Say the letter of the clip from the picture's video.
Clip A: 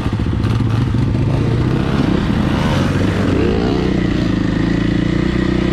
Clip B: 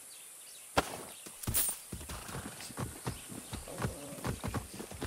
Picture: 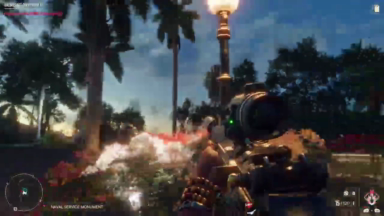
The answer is B